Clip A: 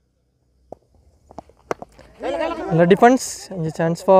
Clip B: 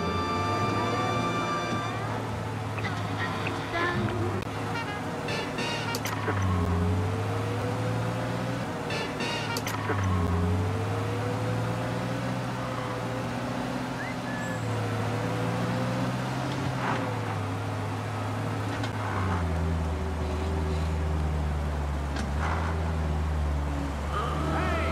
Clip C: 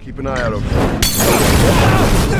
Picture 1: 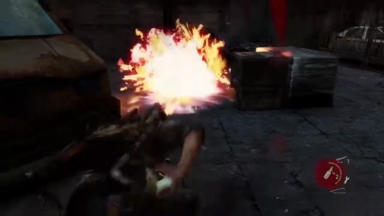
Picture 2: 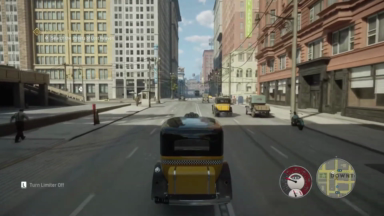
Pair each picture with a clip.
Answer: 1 C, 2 B